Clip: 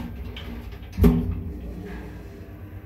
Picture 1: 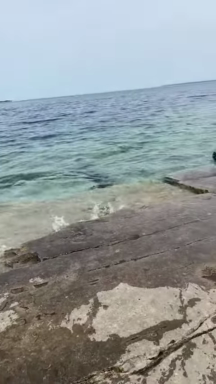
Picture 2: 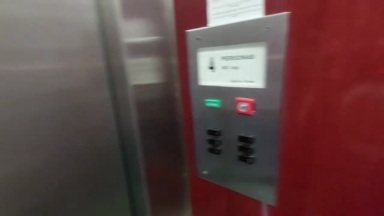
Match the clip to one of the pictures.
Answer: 2